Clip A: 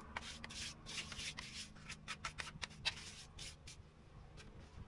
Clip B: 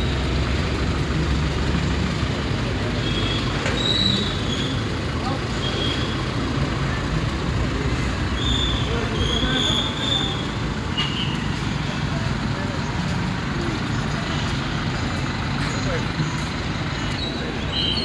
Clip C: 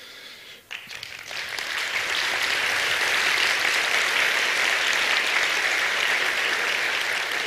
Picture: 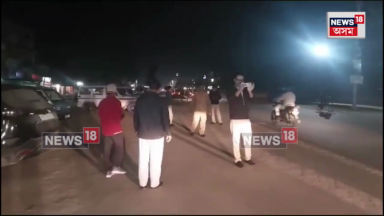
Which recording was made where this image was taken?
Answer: B